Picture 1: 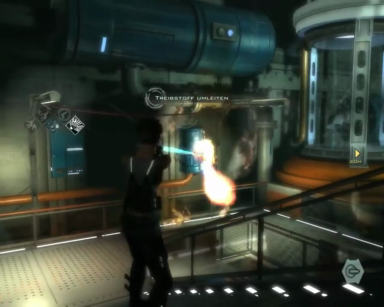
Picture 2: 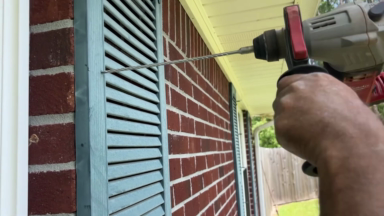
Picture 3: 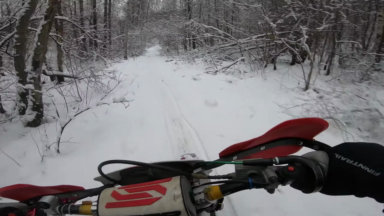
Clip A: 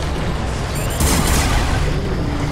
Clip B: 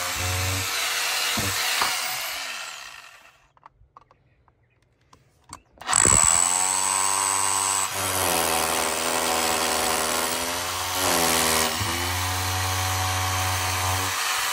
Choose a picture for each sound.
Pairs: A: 1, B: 2